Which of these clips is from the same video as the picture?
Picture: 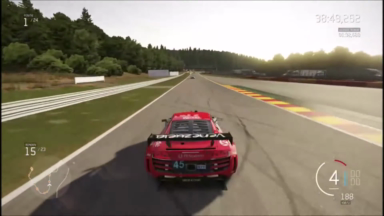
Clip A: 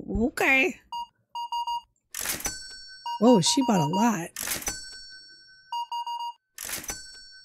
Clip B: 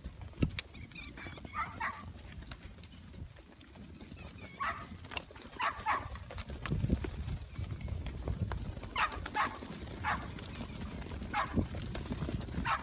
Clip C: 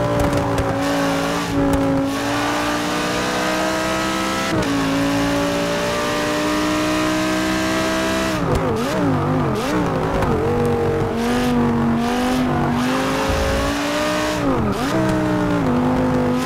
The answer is C